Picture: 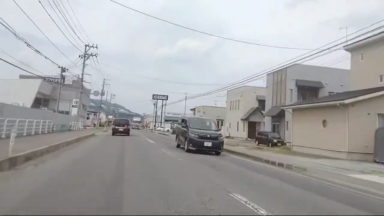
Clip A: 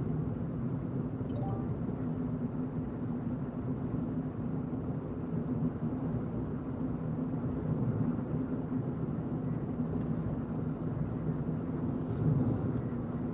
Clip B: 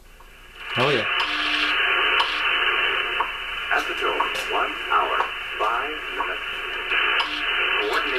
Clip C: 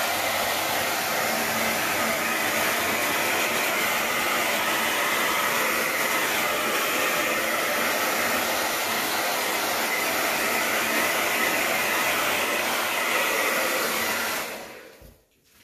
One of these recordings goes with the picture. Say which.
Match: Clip A